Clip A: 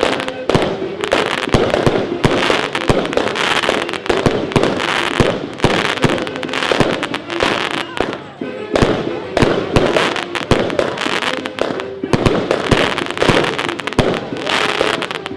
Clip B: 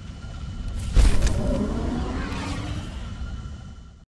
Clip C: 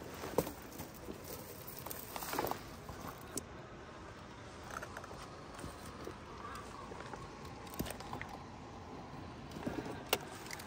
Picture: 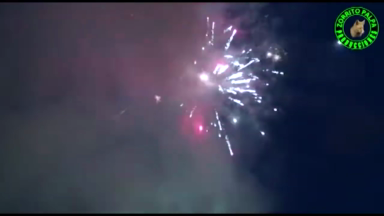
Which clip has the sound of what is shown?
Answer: A